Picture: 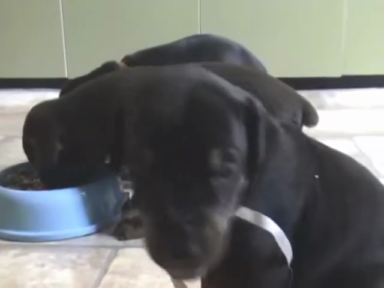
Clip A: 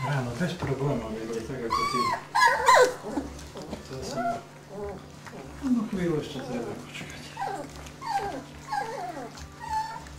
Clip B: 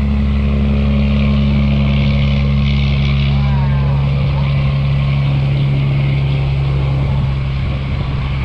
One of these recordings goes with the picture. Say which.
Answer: A